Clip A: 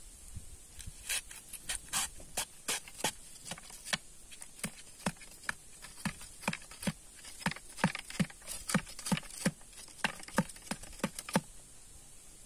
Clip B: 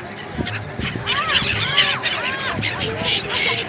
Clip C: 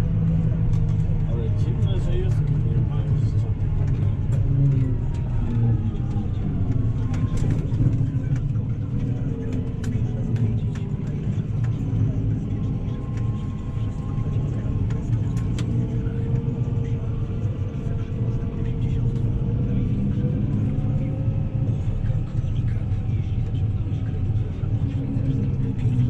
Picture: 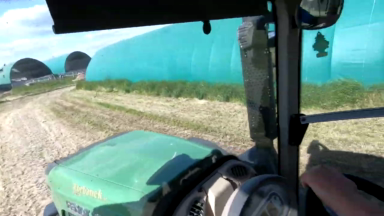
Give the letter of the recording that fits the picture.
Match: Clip C